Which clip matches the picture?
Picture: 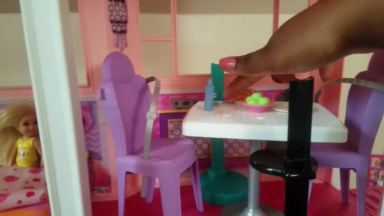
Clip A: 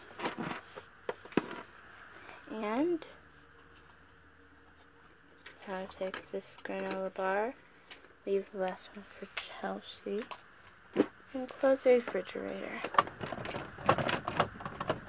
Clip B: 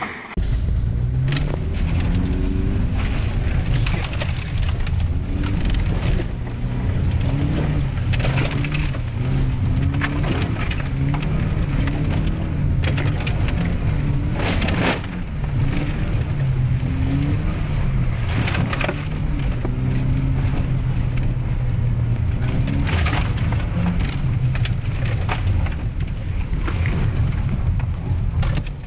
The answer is A